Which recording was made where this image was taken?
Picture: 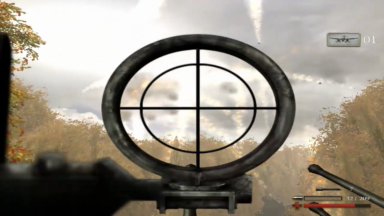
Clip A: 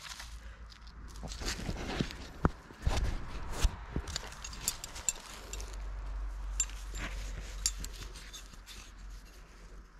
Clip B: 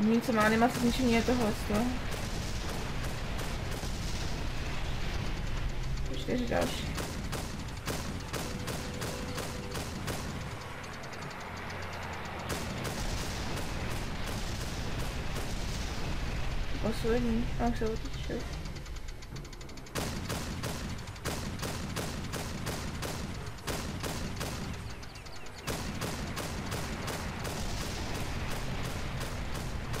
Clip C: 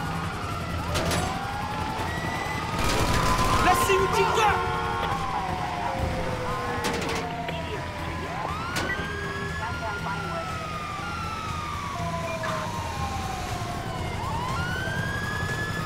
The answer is B